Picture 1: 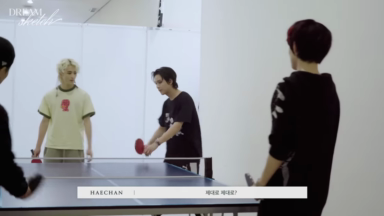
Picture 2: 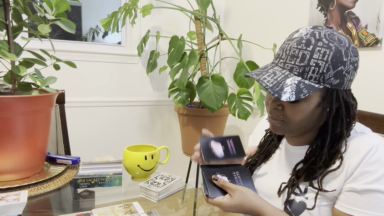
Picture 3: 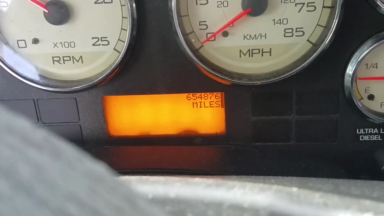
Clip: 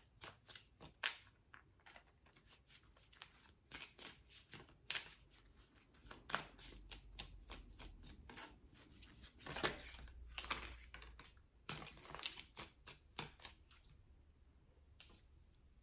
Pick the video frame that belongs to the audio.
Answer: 2